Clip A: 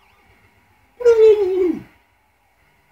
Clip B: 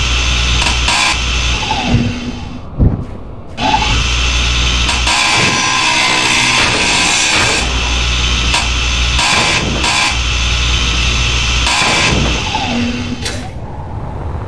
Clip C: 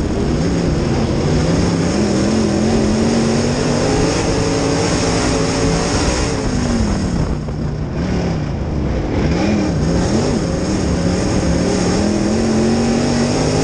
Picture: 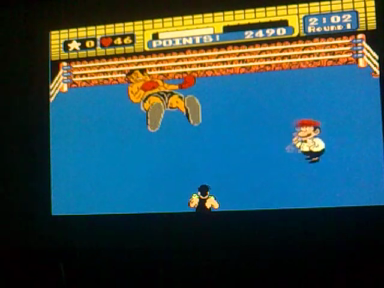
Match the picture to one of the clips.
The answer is A